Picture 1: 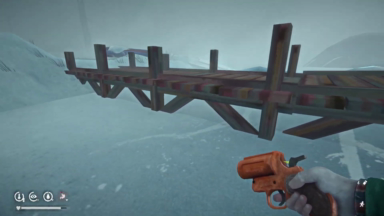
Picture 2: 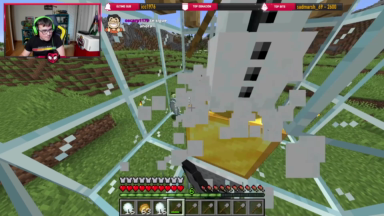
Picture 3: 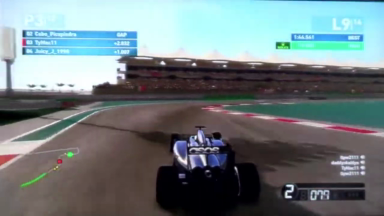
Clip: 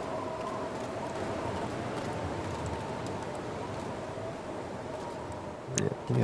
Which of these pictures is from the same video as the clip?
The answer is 1